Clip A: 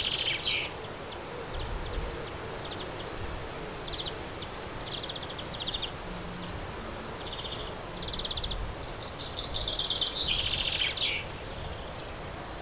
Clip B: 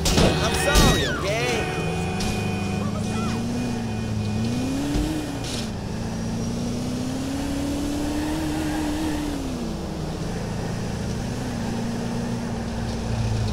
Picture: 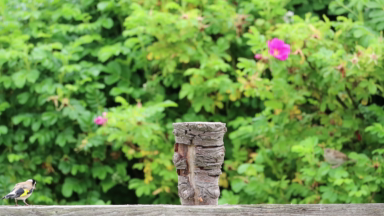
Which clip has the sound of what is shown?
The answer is A